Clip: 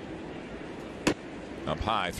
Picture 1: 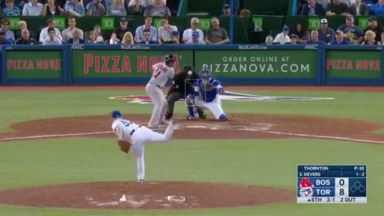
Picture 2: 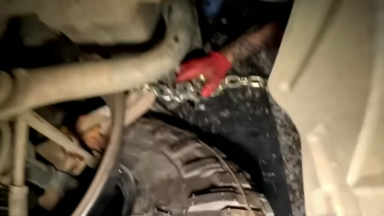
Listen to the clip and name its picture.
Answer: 1